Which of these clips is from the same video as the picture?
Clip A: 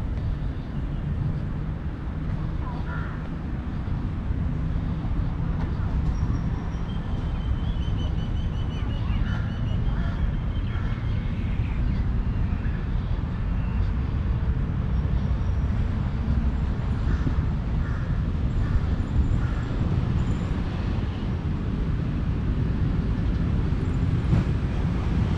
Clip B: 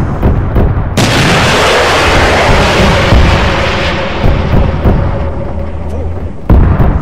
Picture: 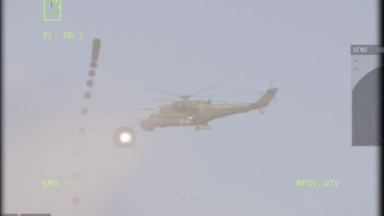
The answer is B